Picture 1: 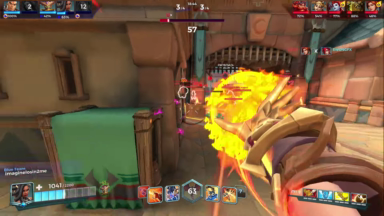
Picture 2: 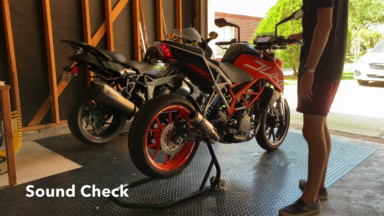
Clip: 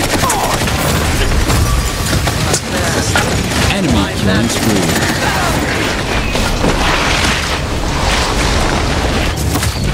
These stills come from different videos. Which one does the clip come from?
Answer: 1